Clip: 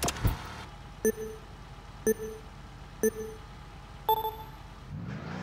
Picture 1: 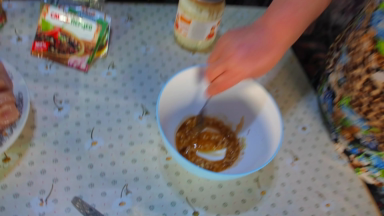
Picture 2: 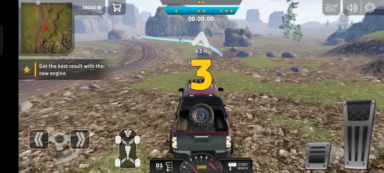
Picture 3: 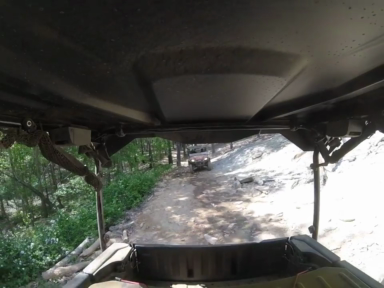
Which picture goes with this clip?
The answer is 2